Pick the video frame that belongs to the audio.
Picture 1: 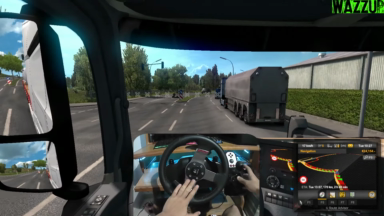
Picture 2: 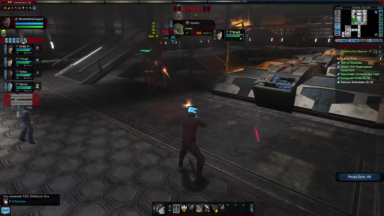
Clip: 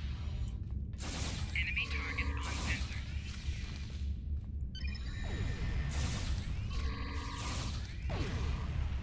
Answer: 2